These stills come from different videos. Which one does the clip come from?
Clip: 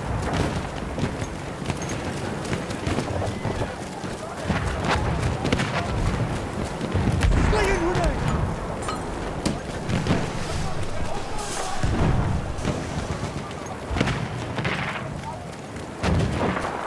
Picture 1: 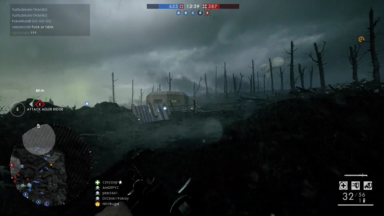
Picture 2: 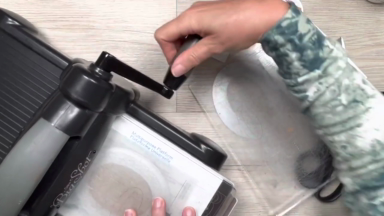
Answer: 1